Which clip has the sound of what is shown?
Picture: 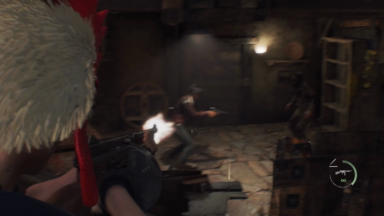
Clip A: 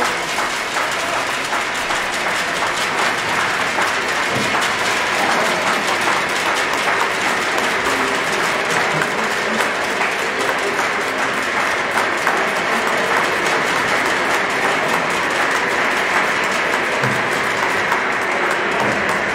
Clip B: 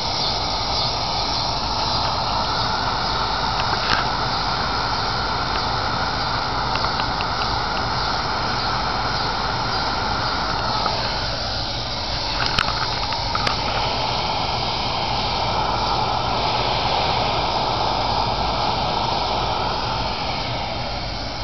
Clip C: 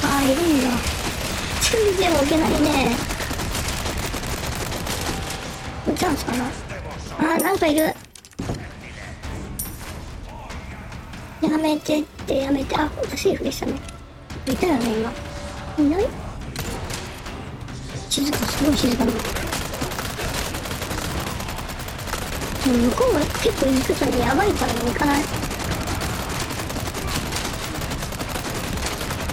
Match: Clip C